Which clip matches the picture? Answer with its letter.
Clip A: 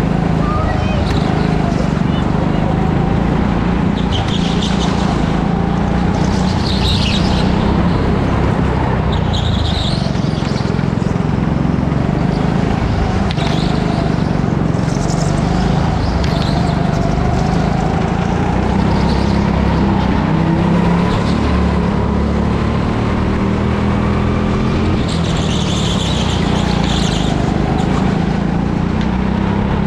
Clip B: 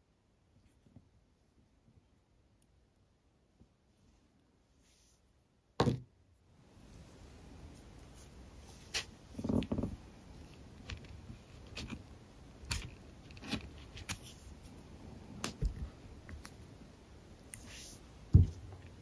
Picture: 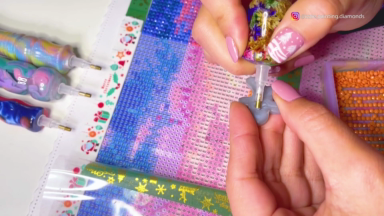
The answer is B